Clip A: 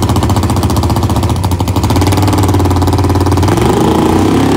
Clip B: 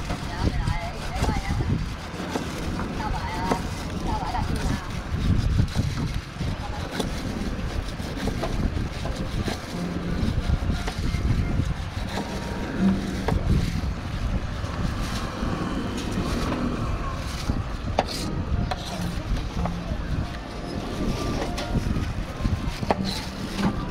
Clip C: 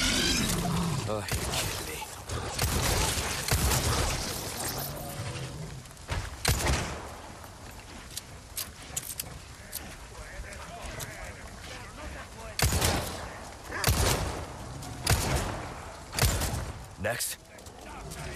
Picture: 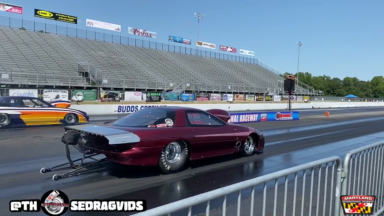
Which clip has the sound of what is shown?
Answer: A